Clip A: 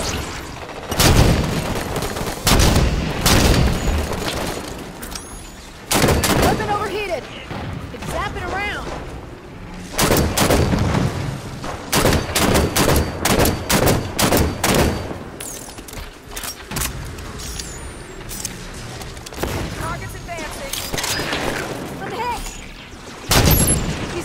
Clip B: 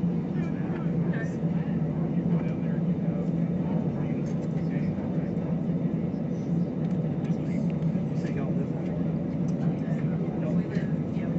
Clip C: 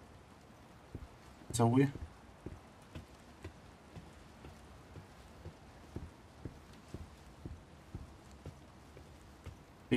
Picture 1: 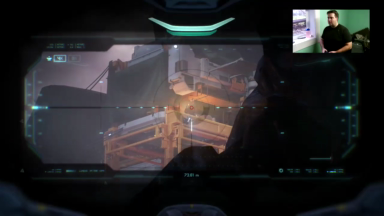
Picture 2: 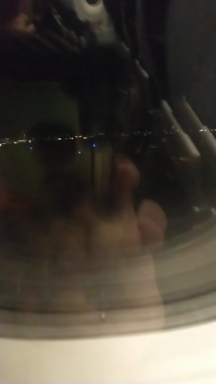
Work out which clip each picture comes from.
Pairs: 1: A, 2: B